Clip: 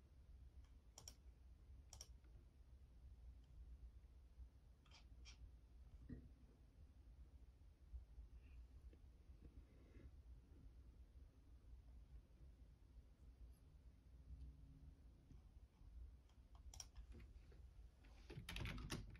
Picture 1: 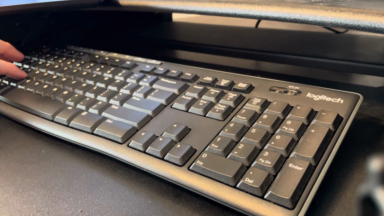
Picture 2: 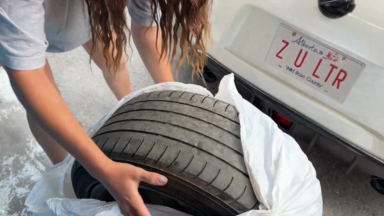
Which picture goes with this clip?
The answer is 1